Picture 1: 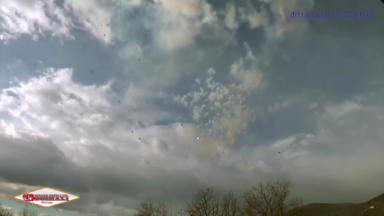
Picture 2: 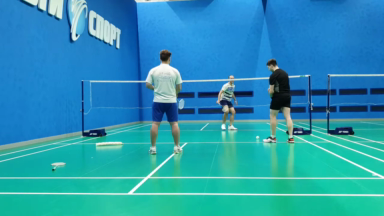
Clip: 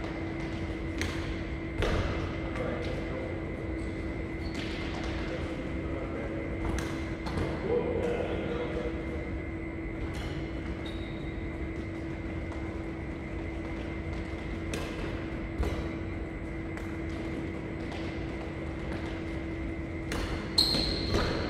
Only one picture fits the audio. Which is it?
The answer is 2